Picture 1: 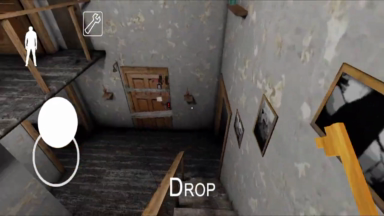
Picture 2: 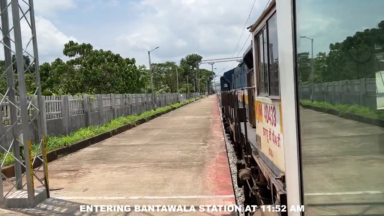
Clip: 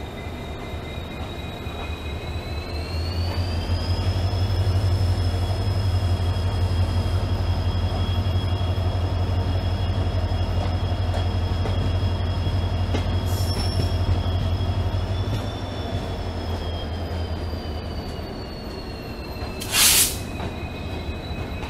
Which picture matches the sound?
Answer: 2